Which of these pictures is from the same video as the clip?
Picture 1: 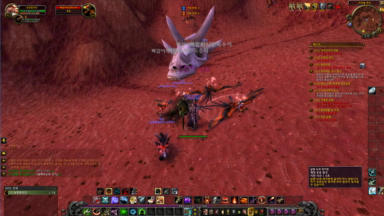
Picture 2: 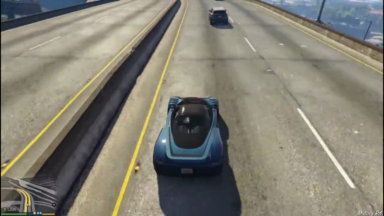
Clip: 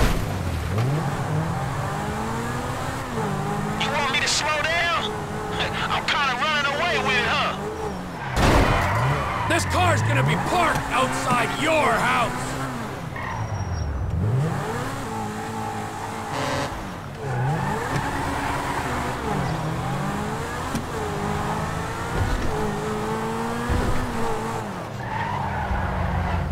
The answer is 2